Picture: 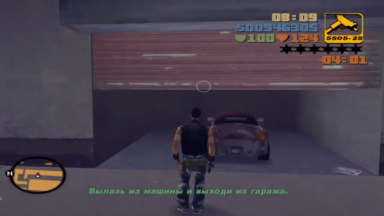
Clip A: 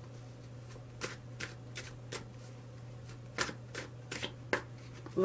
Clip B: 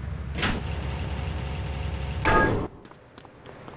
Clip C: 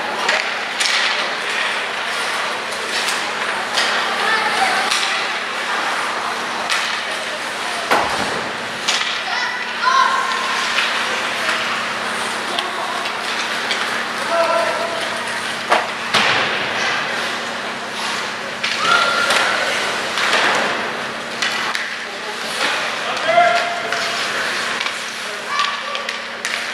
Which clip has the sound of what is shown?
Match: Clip B